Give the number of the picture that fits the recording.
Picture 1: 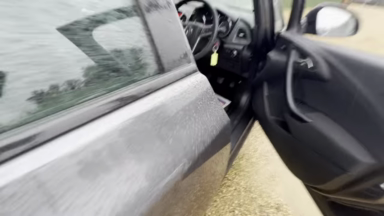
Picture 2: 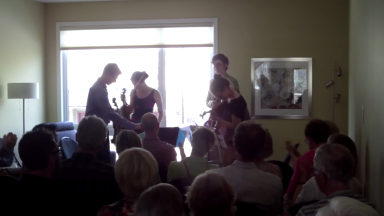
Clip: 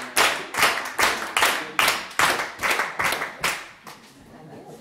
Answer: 2